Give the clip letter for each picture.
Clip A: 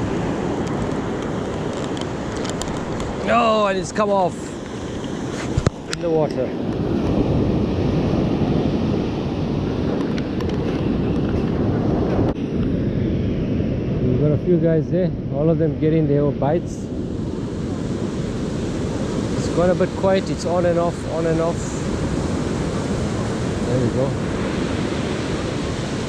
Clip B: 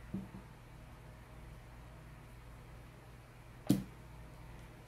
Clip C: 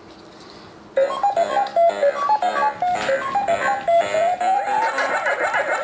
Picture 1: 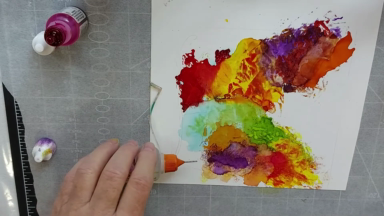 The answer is B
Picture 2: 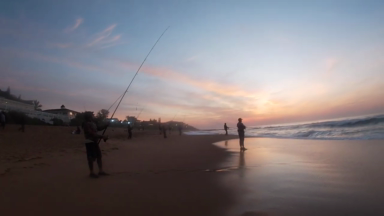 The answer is A